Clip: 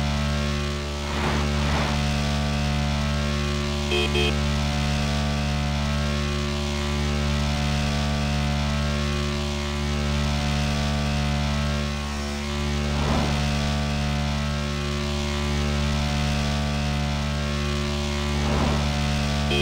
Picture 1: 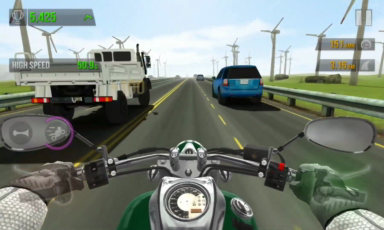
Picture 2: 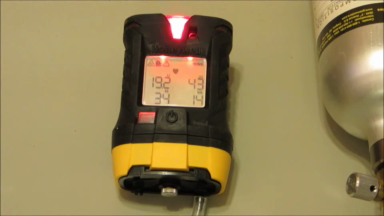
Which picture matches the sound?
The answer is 1